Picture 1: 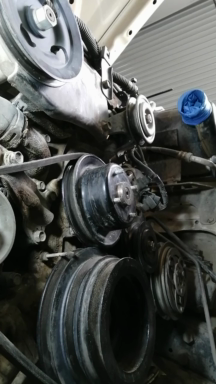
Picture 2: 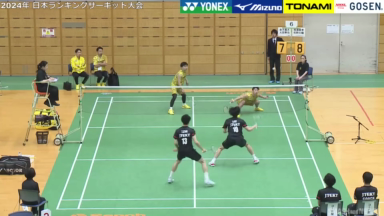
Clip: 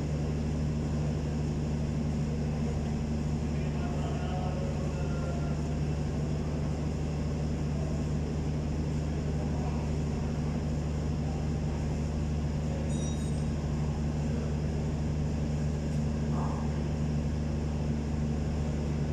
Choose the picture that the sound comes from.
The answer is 1